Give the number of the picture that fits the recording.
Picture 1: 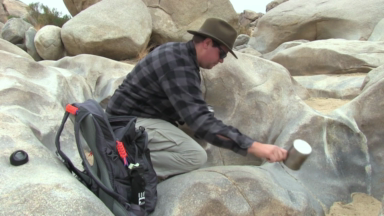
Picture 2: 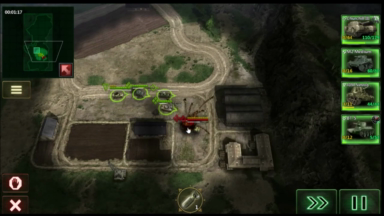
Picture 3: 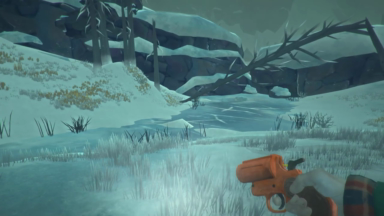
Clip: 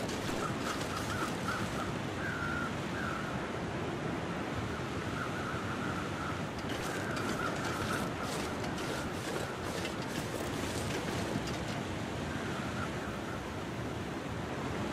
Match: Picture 3